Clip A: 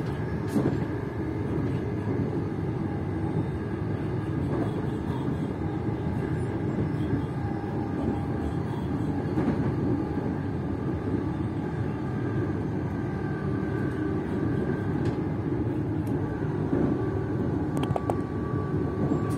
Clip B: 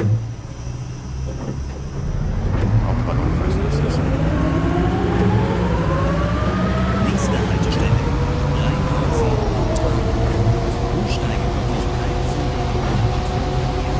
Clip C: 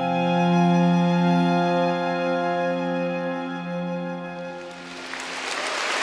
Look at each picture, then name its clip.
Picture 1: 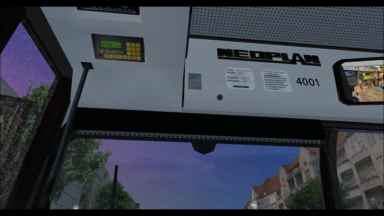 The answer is B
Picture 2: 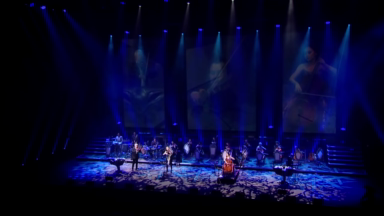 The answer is C